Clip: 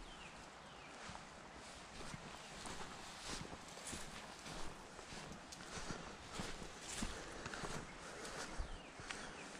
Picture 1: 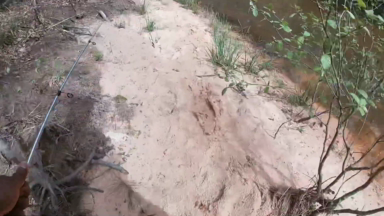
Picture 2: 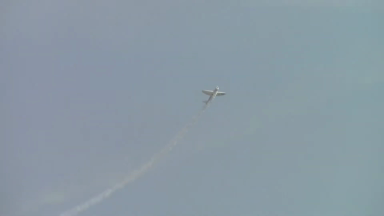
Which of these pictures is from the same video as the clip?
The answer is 1